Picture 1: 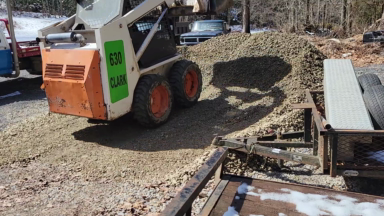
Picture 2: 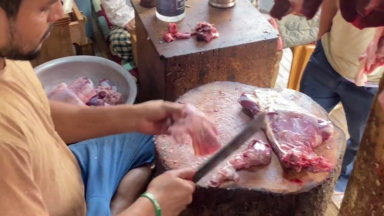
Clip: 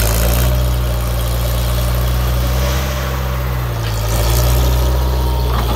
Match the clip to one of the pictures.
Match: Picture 1